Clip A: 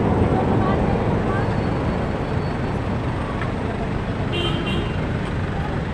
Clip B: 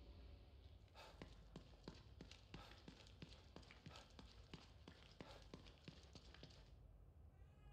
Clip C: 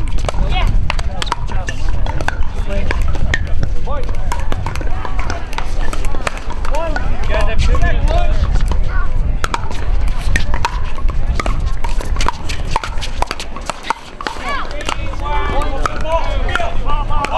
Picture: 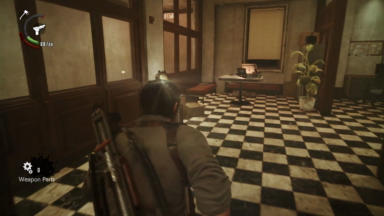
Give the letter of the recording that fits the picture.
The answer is B